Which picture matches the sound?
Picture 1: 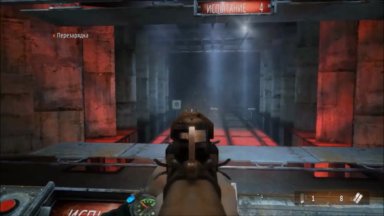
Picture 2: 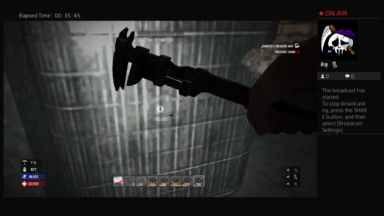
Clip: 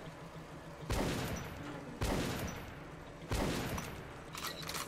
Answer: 1